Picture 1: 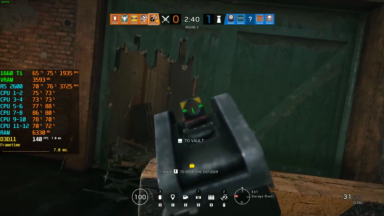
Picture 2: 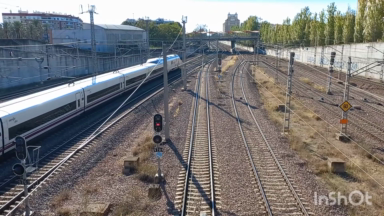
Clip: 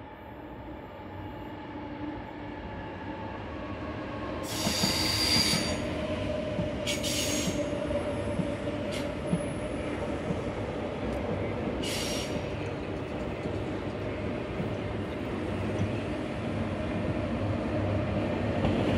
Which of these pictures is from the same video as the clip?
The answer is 2